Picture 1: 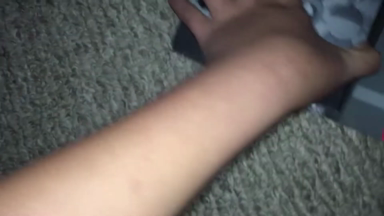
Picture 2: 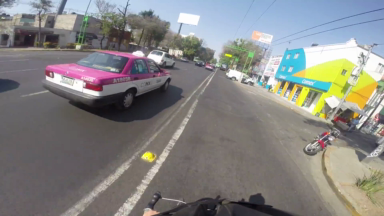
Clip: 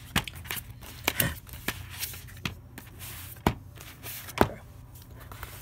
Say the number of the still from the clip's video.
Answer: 1